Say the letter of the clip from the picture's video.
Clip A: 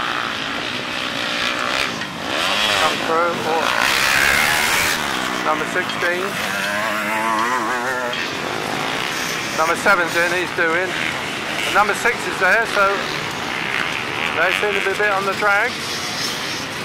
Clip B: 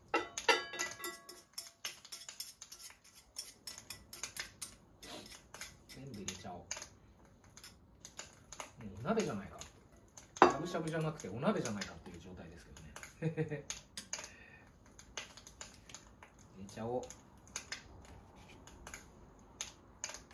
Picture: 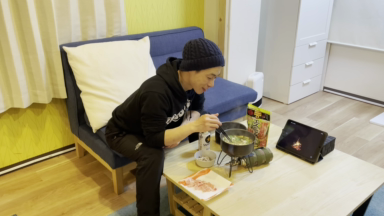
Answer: B